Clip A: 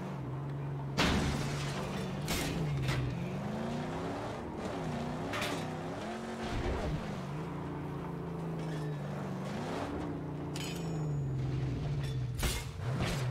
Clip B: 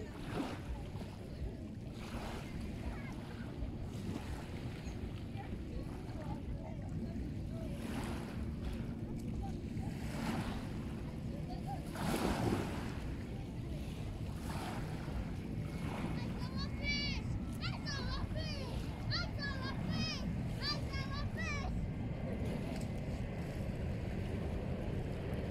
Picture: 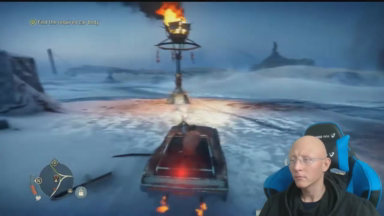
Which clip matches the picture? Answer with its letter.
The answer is A